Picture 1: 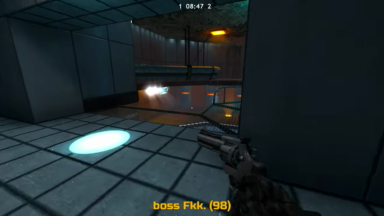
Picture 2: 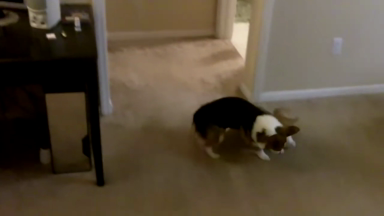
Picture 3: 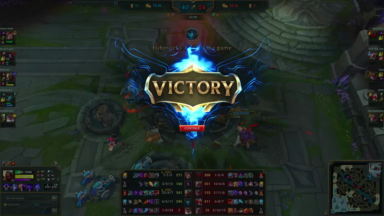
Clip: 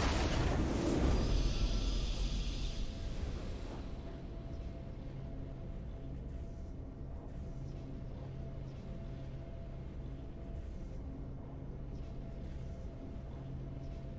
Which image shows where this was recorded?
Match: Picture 3